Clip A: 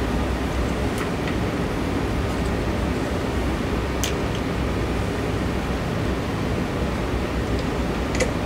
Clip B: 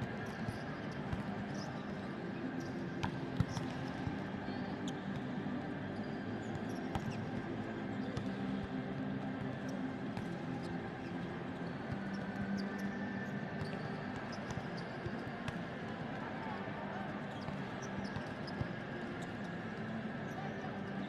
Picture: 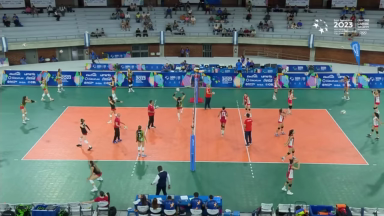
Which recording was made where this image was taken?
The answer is B